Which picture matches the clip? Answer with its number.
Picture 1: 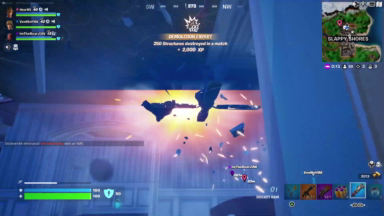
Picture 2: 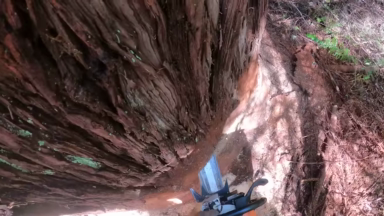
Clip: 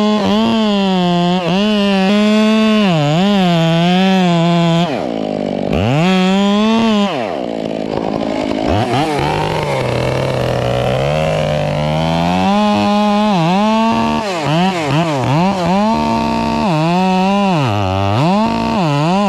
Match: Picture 2